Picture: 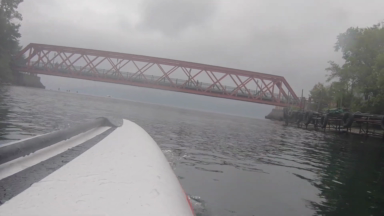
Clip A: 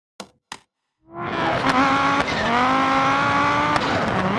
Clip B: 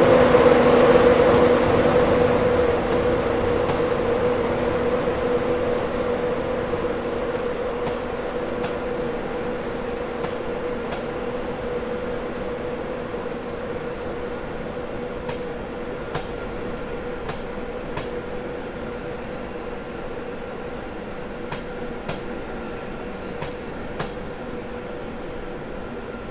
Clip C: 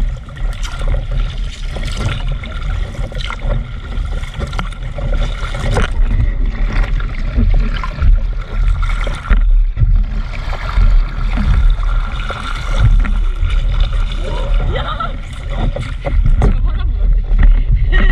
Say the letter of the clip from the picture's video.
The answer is C